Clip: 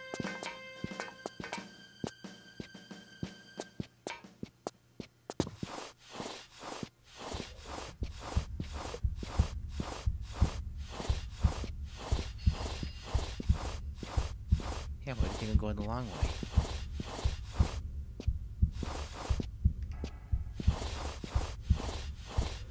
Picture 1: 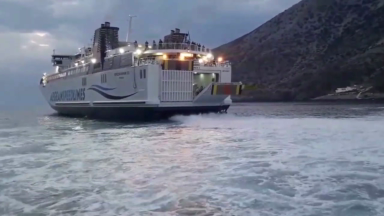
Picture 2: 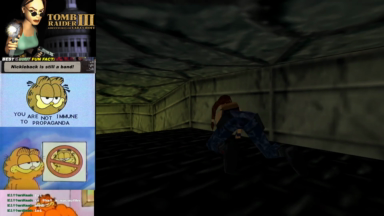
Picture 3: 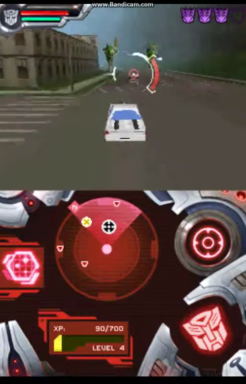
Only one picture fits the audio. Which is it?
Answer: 2